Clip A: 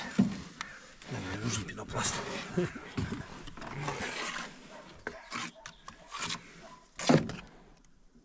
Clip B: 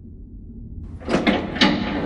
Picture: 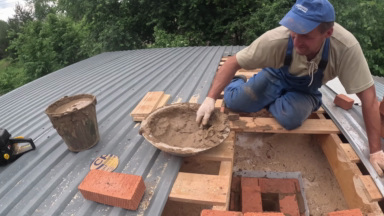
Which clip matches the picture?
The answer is A